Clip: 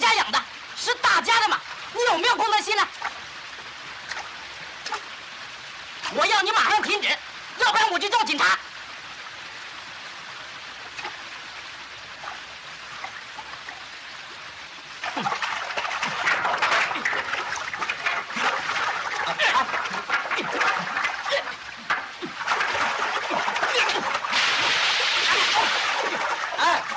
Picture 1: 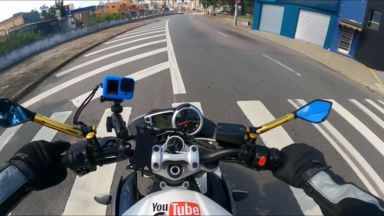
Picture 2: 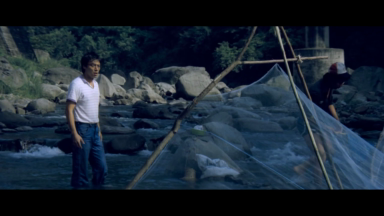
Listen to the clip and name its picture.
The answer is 2